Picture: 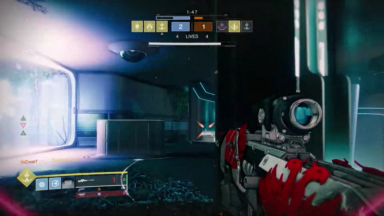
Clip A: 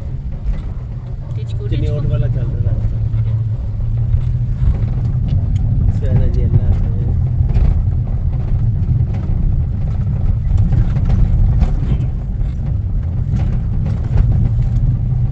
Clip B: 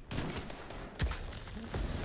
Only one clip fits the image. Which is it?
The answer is B